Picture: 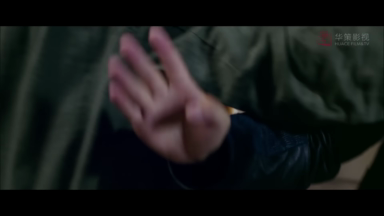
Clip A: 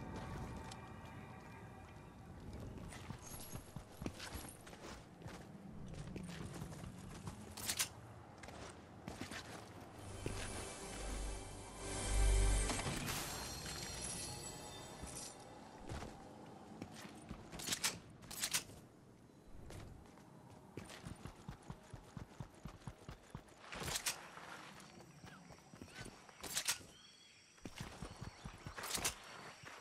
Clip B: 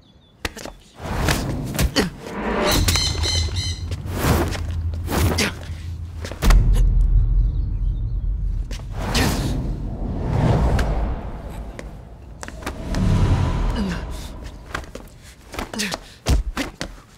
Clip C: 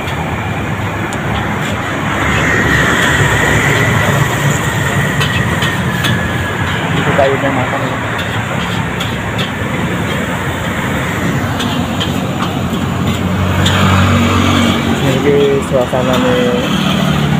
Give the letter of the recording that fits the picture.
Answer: B